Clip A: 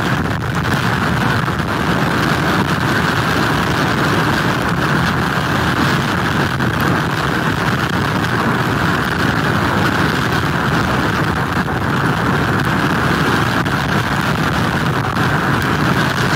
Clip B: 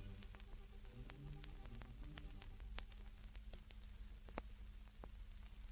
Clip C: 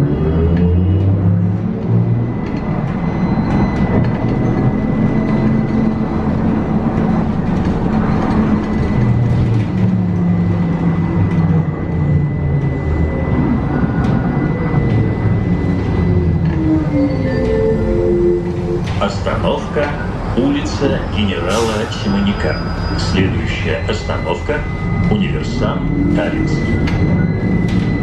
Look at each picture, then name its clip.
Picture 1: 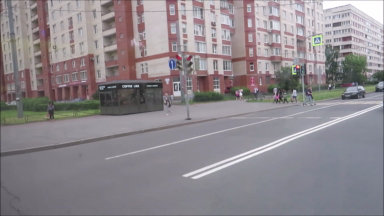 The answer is C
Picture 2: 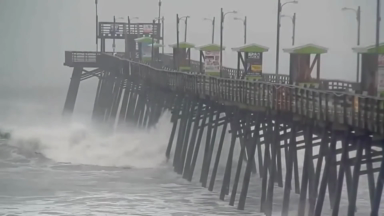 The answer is A